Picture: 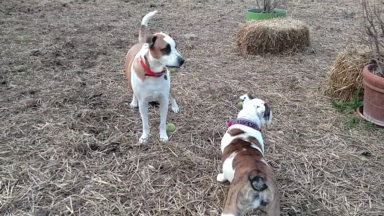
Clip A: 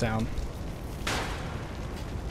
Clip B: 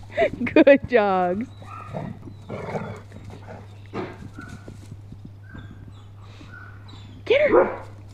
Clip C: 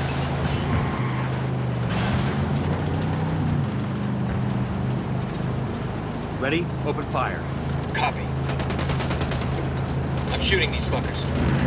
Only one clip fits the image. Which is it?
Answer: B